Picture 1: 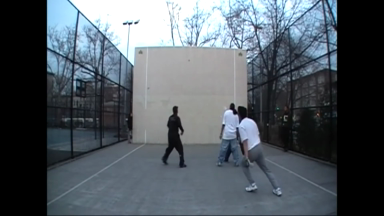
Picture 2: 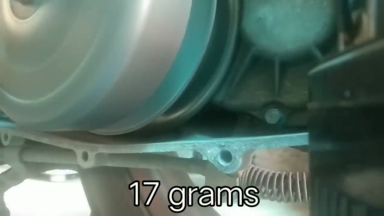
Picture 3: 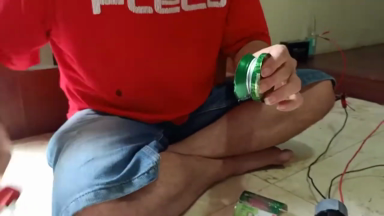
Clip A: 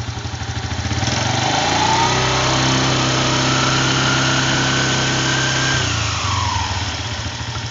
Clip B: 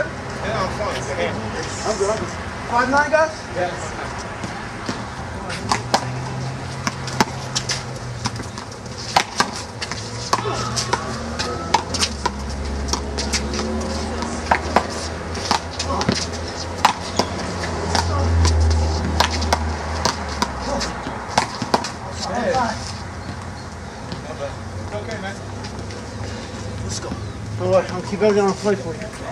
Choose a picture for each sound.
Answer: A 2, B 1